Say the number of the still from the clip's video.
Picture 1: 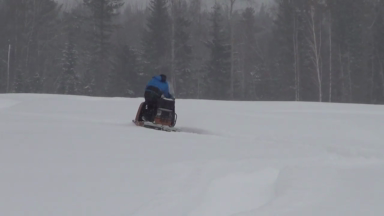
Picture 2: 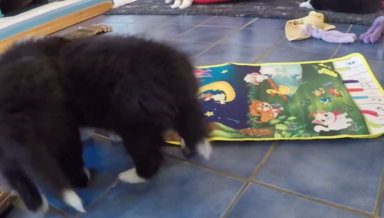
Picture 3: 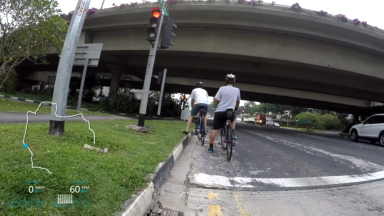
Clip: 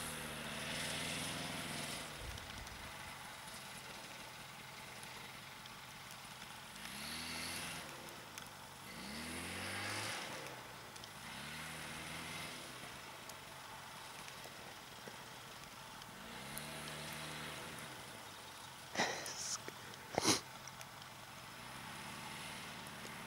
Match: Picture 1